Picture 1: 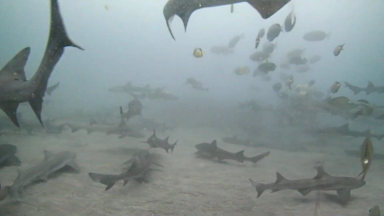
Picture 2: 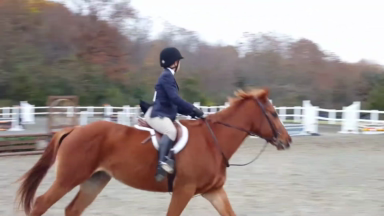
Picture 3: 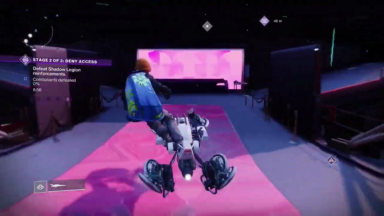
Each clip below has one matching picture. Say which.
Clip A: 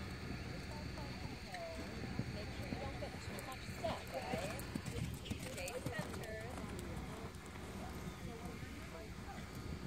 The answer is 2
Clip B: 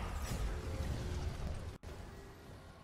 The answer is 3